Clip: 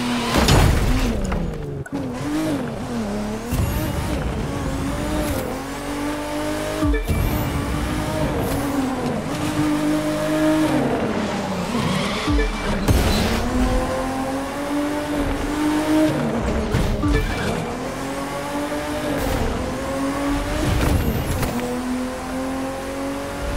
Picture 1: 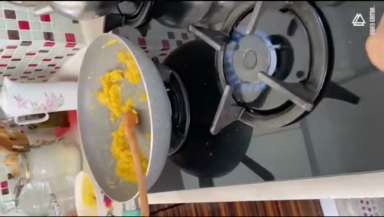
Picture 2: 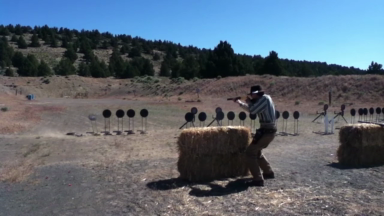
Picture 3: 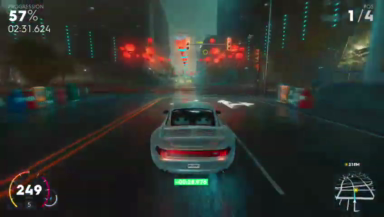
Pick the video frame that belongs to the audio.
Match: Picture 3